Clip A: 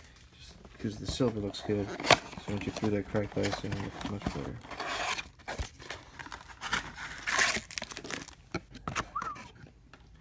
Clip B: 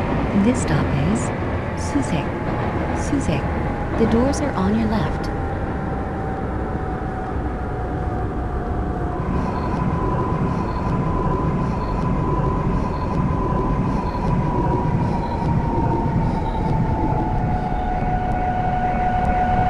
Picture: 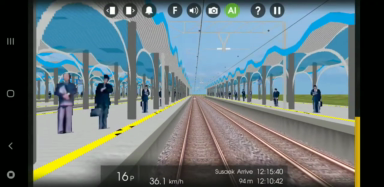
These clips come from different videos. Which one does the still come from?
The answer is B